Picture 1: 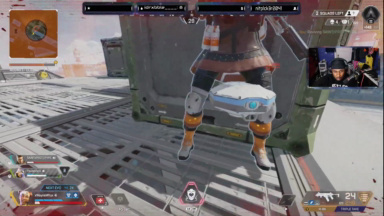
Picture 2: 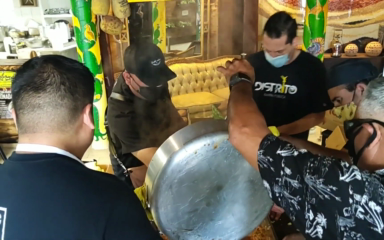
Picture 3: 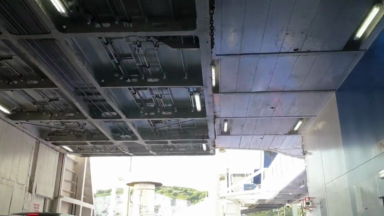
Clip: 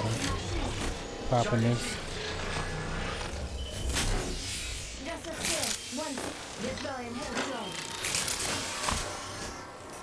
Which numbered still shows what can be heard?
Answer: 1